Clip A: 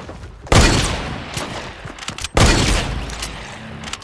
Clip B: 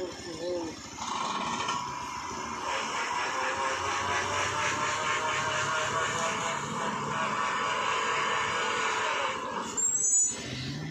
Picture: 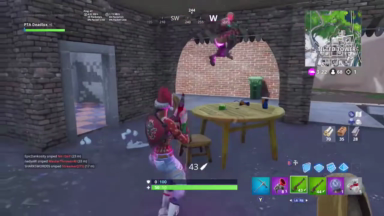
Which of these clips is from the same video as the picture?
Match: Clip A